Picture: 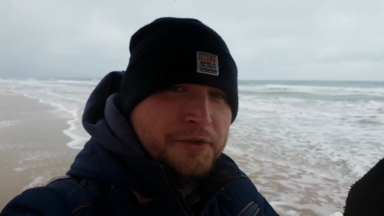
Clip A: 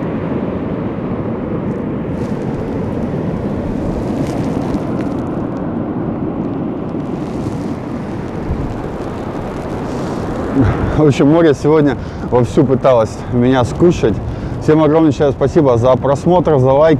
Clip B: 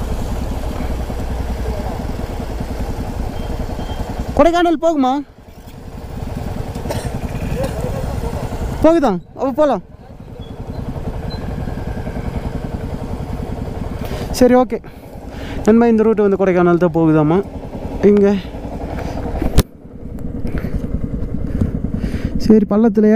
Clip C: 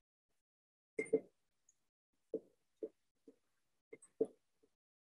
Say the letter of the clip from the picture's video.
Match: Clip A